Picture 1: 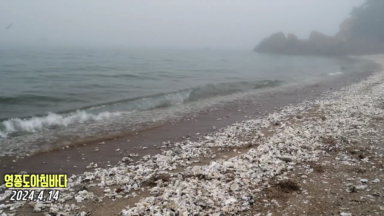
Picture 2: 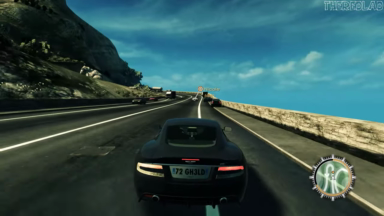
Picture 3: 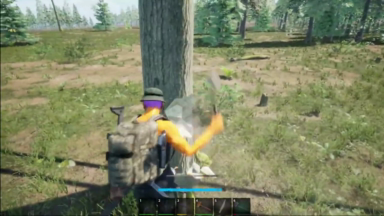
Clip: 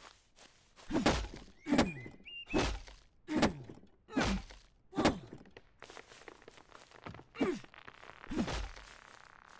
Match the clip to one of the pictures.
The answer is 3